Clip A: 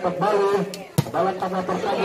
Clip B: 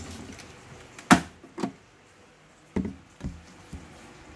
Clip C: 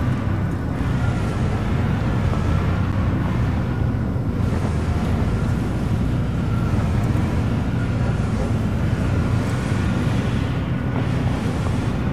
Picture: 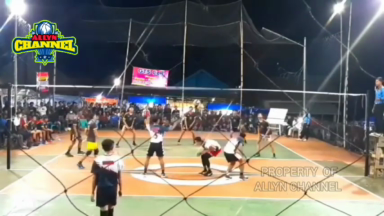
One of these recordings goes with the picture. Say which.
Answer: A